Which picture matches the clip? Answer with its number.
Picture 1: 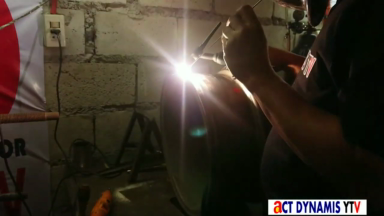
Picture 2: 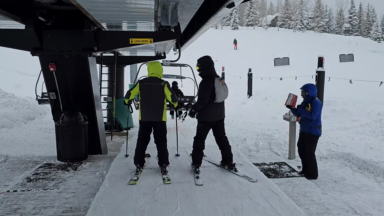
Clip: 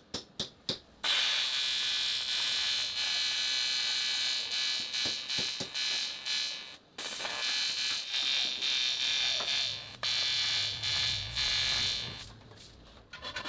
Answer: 1